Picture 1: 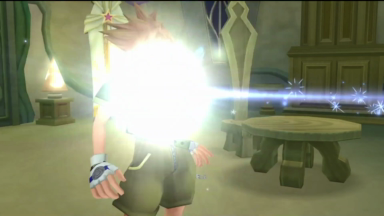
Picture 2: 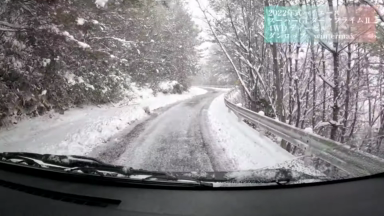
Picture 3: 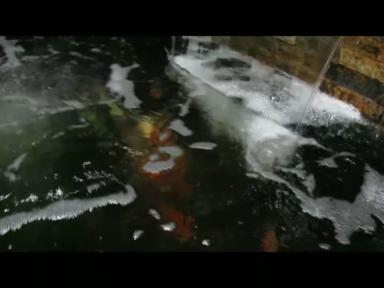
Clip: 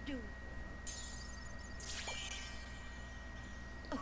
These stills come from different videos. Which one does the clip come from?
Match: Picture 1